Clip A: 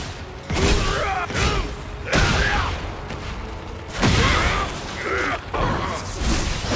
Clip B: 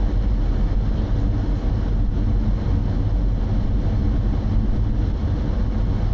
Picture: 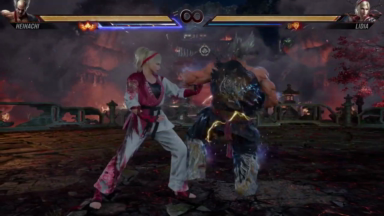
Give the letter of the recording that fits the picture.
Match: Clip A